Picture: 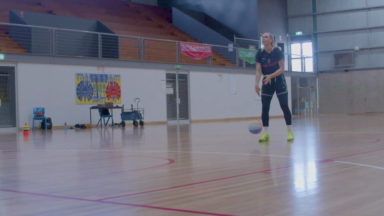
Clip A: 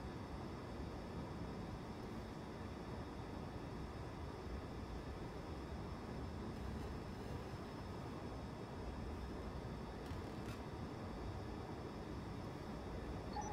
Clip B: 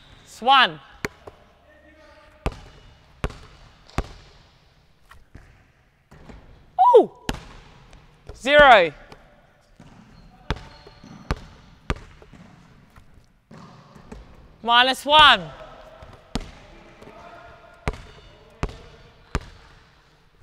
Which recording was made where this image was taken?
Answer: B